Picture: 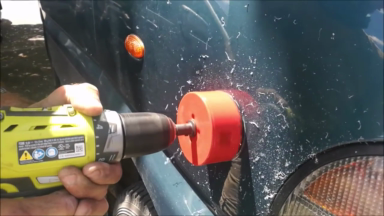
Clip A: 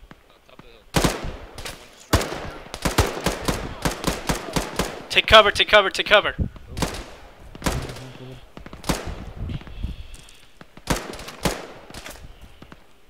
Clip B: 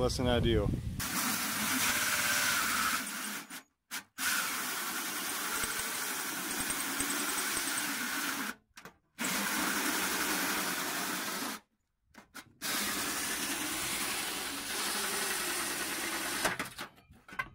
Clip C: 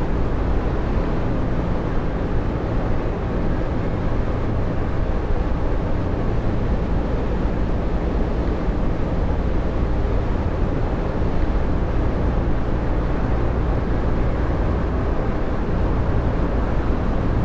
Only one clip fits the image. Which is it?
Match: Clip B